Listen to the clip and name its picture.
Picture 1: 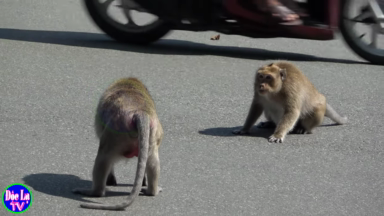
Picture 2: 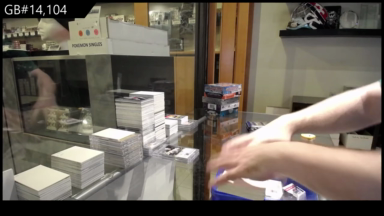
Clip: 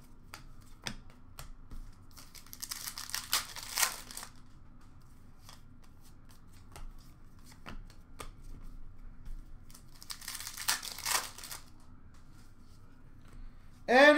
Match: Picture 2